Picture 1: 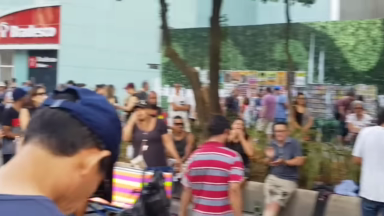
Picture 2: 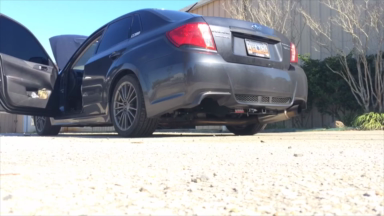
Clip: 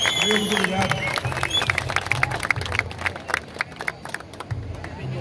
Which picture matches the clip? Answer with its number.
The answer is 1